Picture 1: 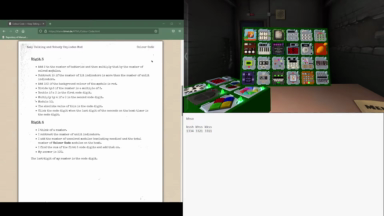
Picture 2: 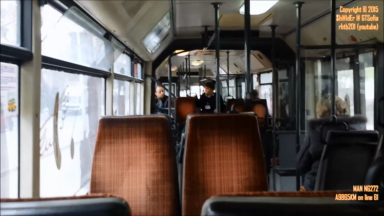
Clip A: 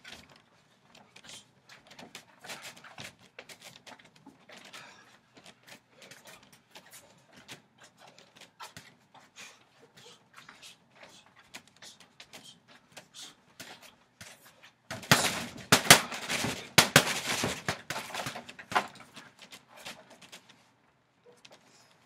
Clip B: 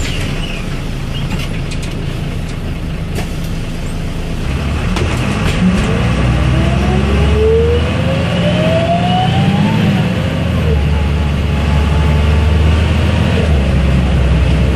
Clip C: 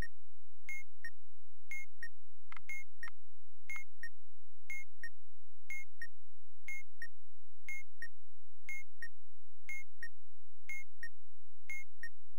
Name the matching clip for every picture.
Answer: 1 C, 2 B